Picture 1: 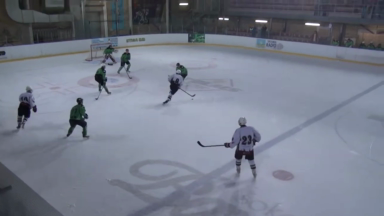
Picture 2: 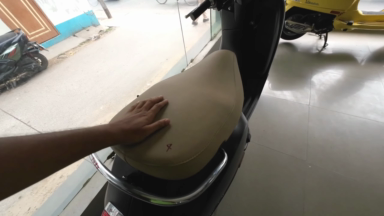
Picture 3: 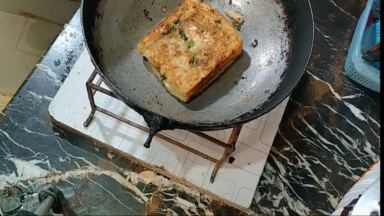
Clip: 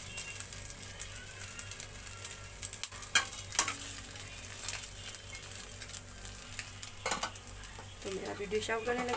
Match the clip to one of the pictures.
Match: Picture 3